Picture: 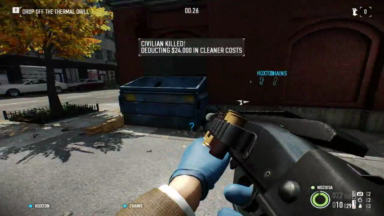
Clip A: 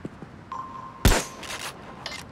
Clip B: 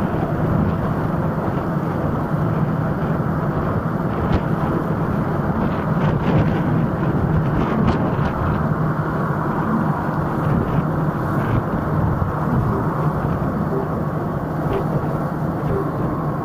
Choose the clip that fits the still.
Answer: A